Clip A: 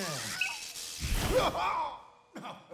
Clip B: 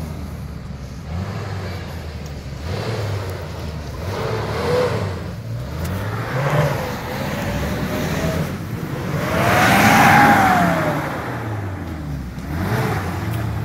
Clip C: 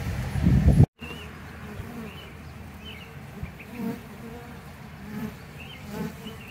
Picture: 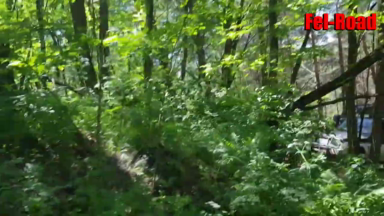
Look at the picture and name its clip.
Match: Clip B